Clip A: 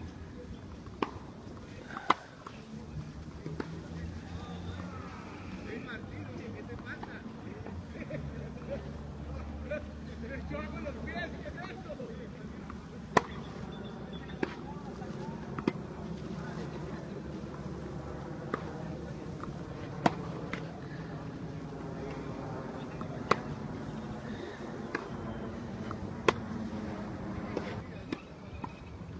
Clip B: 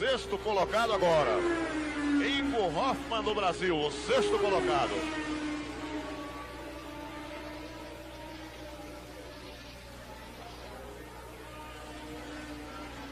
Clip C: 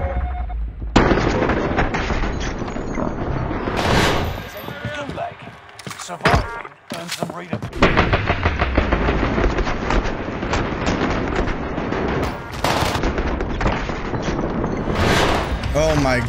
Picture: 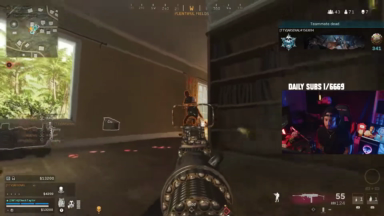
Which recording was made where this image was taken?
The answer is C